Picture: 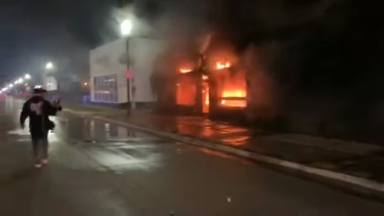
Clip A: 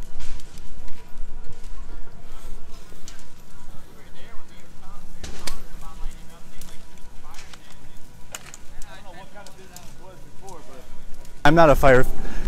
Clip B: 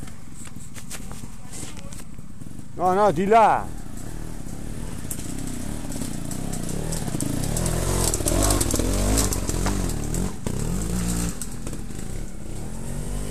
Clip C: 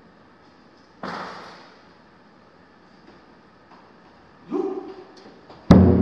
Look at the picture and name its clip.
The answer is A